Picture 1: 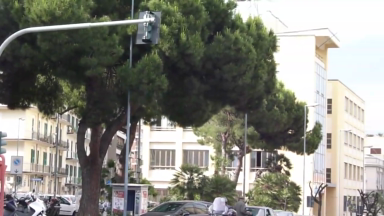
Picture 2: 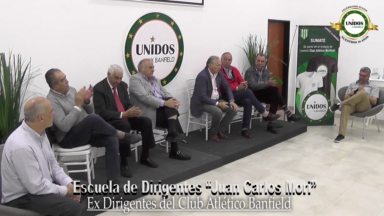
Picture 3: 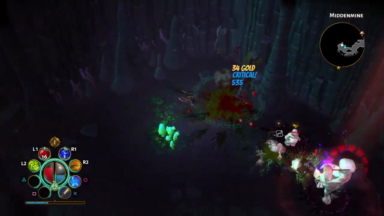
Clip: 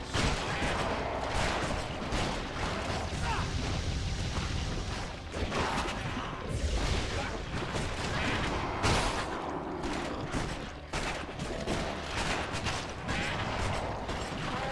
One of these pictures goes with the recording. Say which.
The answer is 3